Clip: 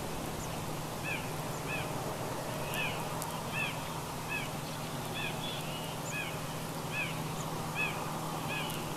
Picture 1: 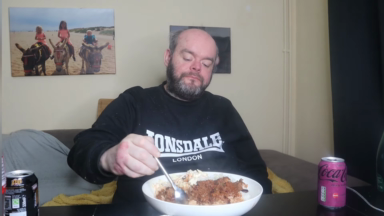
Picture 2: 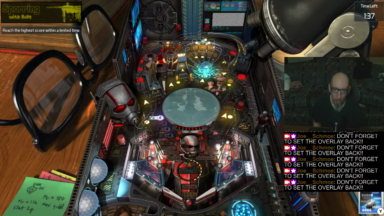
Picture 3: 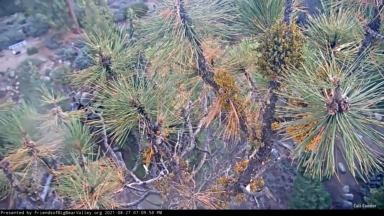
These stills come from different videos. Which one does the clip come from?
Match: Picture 3